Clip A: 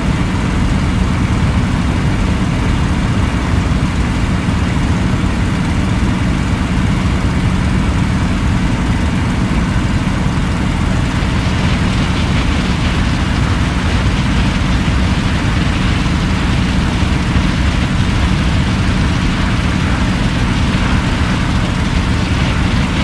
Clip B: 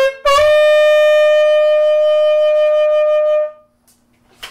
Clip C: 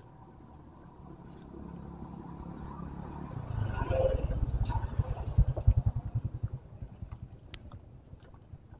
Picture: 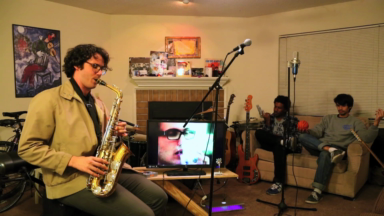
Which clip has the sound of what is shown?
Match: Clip B